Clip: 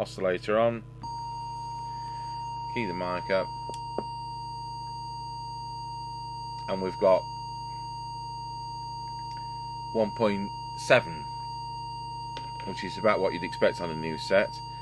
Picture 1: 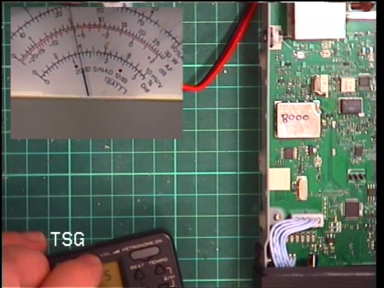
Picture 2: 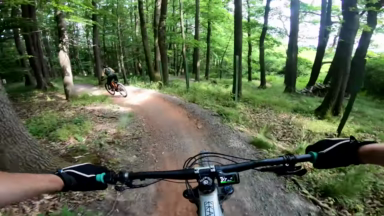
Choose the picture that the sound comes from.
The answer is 1